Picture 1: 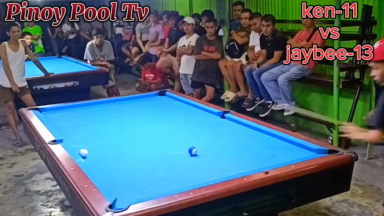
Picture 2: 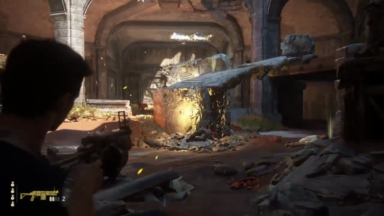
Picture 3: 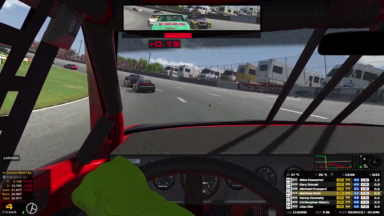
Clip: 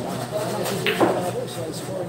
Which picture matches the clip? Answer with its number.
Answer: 1